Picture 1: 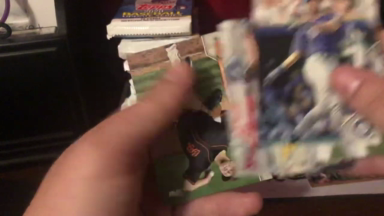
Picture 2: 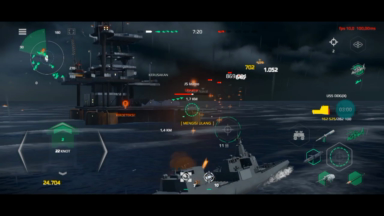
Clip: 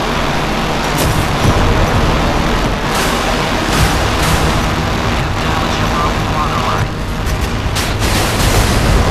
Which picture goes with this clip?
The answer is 2